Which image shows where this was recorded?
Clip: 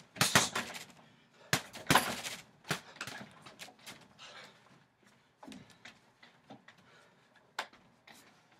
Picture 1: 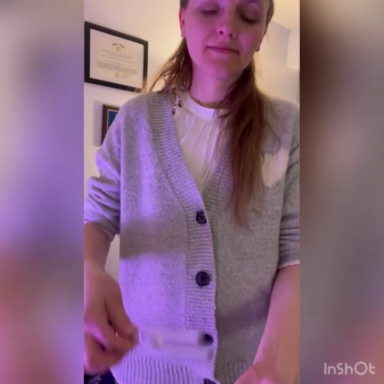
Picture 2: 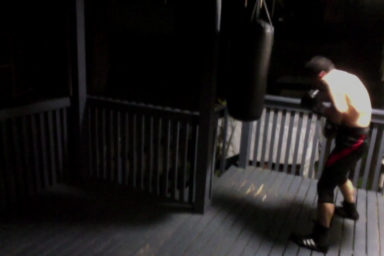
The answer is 2